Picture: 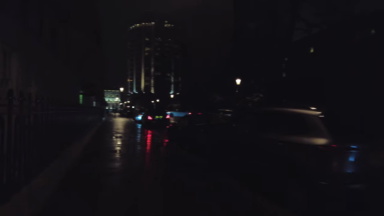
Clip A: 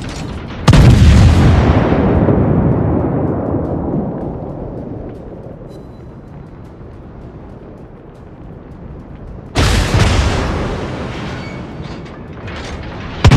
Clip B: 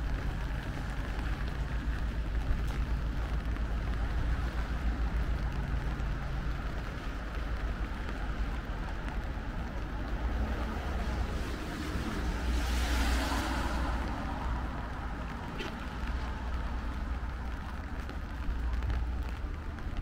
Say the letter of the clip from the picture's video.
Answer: B